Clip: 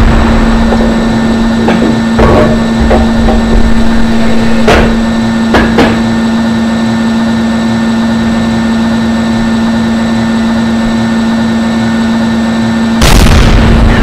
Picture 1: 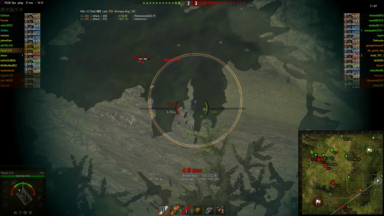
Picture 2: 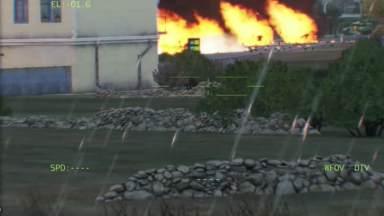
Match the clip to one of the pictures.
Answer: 1